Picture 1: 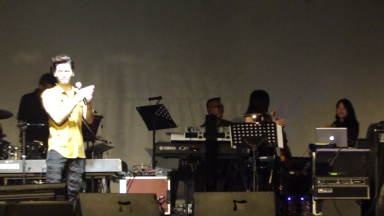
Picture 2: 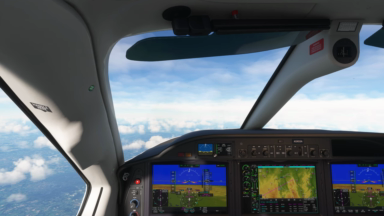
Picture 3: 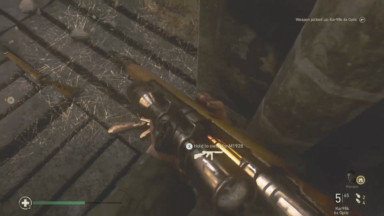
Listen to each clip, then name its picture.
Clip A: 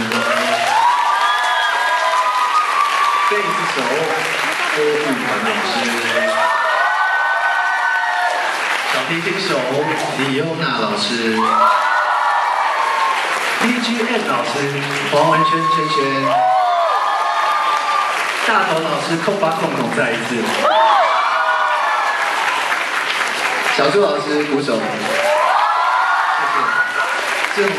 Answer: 1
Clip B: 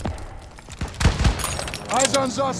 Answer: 3